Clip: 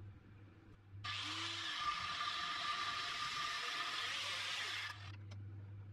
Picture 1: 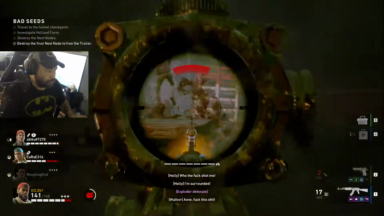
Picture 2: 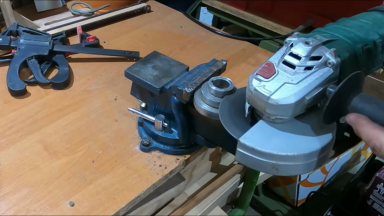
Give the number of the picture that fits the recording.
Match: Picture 2